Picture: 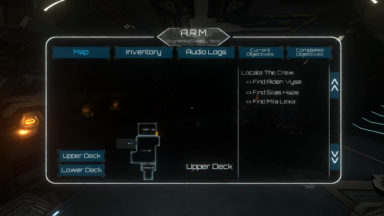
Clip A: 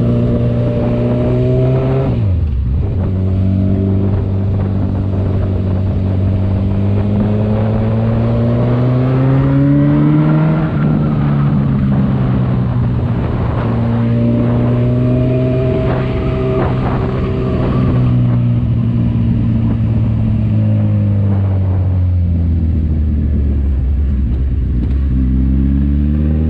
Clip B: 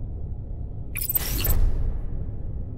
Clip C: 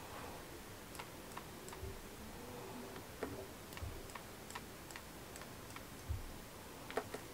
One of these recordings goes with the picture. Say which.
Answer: B